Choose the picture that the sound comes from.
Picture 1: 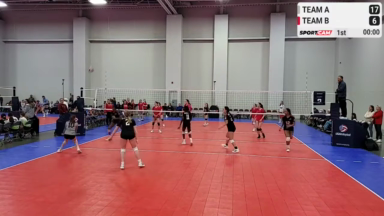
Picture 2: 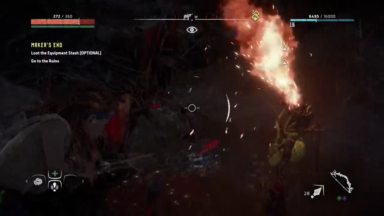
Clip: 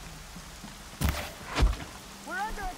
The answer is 2